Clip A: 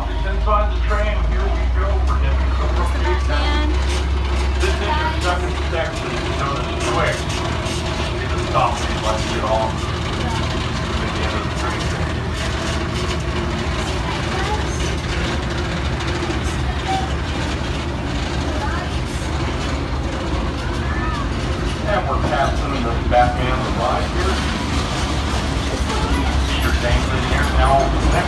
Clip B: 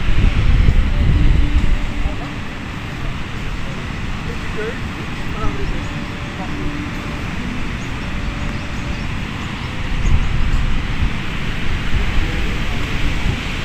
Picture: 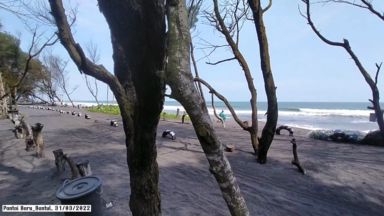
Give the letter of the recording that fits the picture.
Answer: B